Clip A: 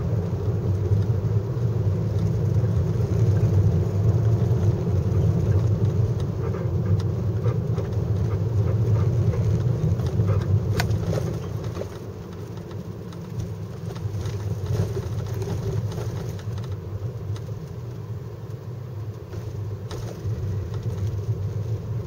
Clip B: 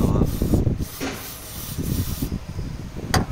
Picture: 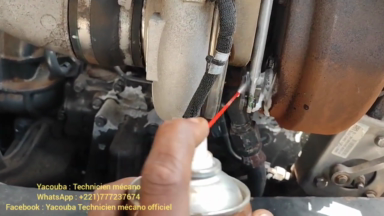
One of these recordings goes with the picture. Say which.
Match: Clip B